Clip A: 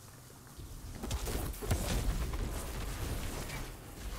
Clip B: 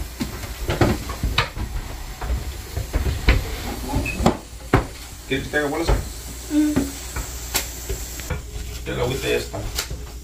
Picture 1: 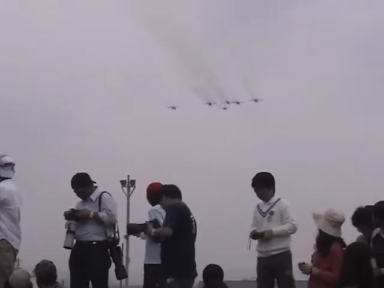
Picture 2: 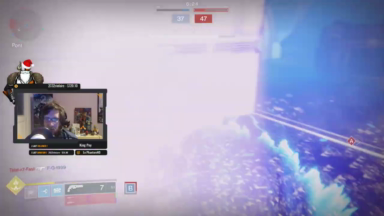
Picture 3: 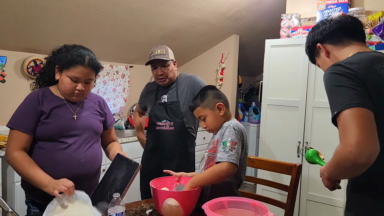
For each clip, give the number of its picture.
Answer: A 2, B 3